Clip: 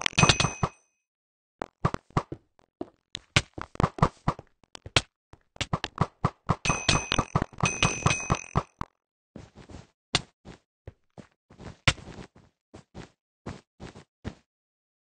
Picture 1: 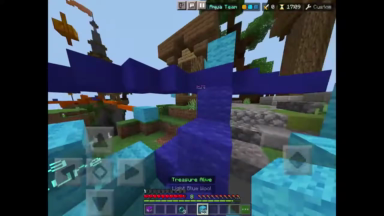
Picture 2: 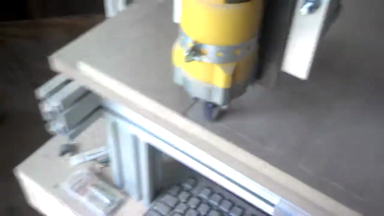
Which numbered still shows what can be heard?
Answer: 1